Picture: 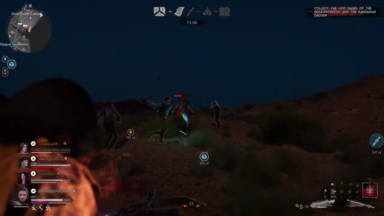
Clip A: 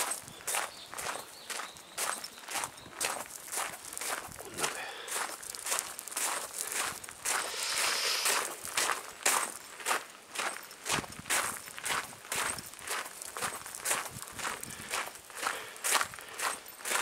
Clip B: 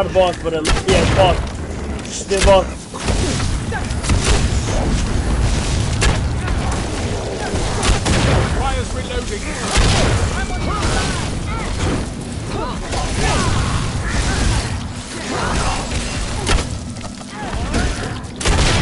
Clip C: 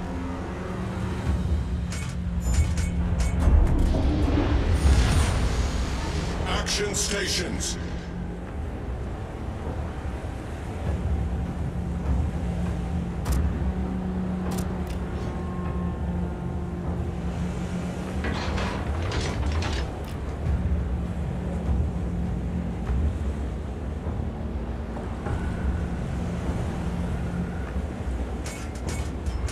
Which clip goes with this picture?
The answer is B